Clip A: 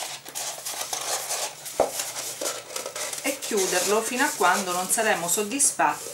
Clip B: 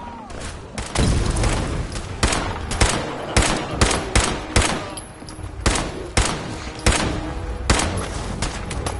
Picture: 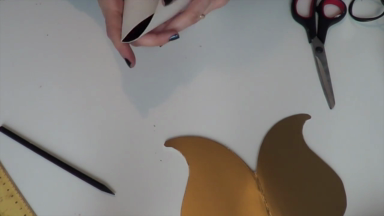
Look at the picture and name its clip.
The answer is A